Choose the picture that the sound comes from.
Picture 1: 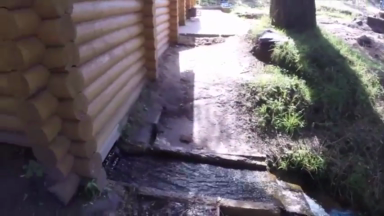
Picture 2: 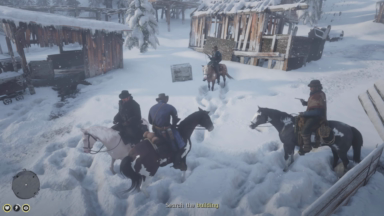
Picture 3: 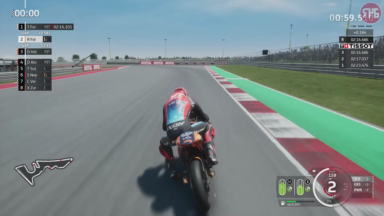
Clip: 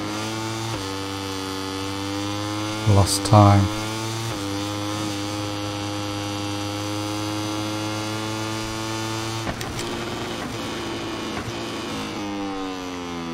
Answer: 3